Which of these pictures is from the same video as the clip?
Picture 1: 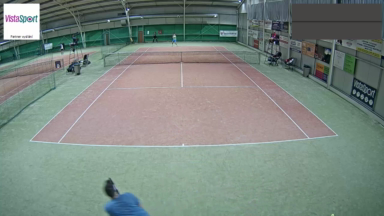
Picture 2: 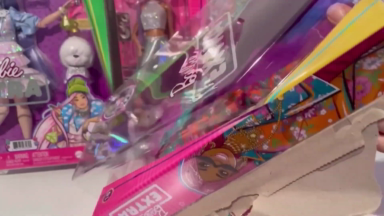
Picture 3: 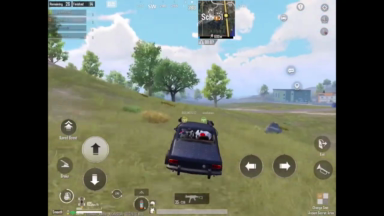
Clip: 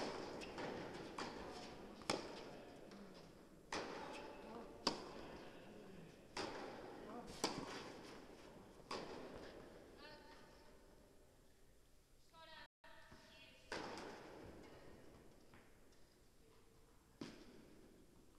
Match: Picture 1